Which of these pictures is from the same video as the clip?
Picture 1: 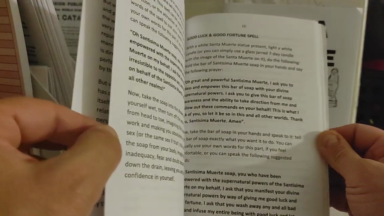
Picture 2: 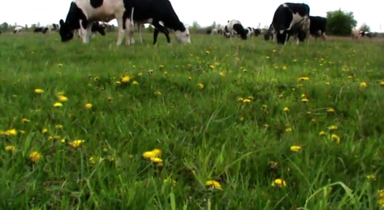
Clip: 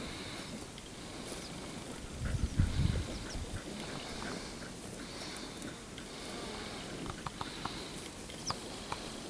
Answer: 2